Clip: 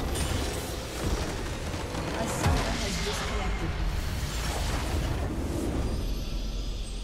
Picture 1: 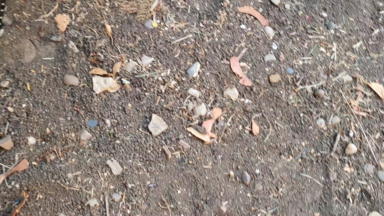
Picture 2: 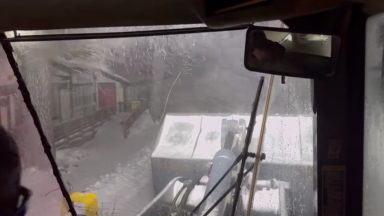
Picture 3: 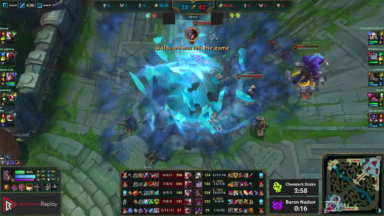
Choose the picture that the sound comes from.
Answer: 3